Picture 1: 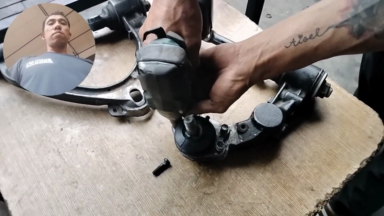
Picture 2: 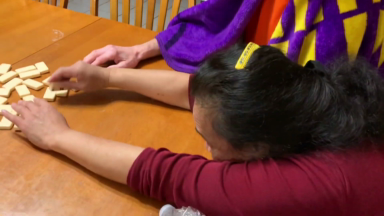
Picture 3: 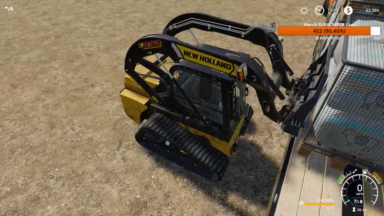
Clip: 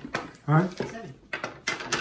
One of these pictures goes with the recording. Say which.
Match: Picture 2